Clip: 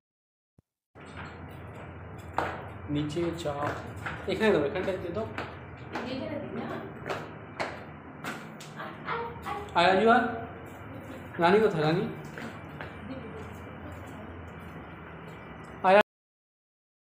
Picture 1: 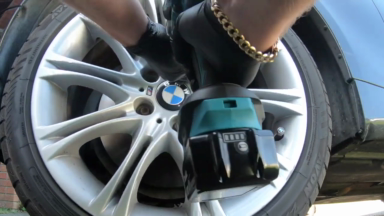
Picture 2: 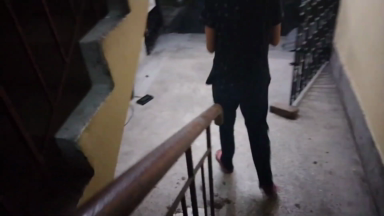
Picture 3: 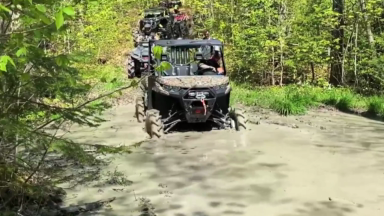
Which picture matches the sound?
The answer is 2